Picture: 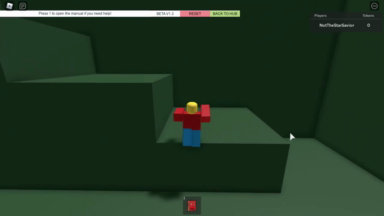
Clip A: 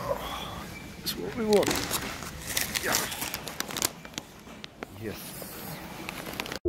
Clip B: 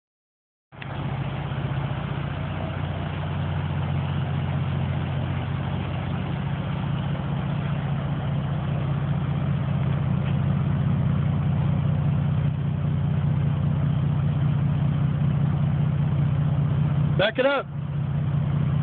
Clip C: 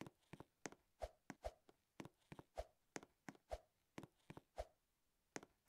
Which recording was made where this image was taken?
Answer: C